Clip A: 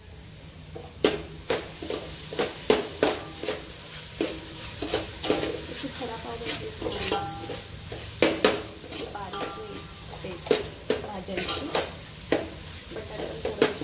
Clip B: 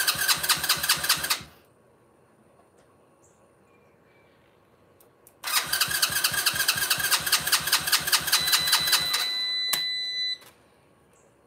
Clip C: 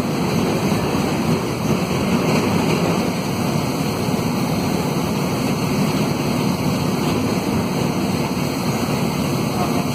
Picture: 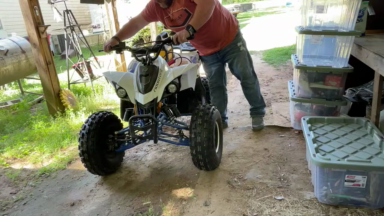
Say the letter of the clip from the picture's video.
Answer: B